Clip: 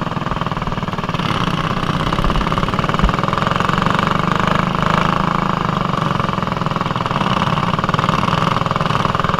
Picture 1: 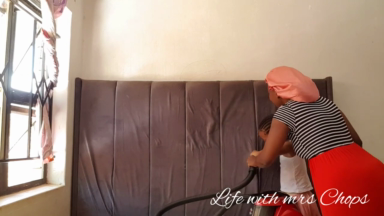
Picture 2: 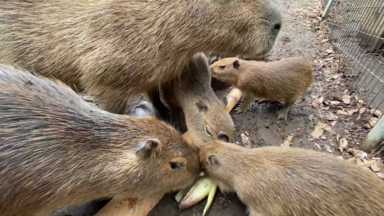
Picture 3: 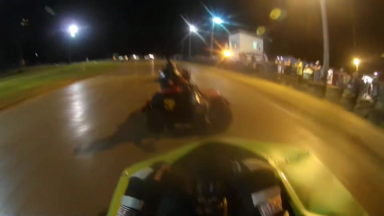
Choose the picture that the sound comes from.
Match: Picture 3